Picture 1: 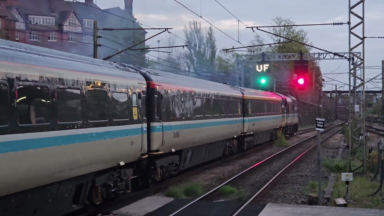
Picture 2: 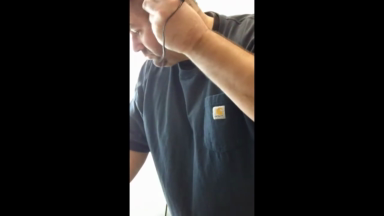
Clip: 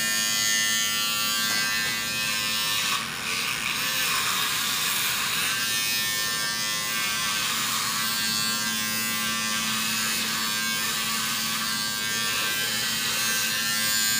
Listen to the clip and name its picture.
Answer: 2